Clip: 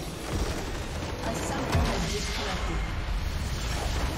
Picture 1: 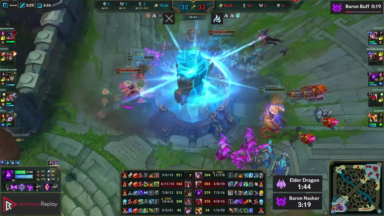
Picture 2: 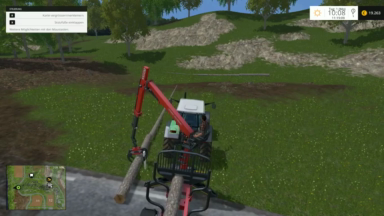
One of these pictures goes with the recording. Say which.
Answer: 1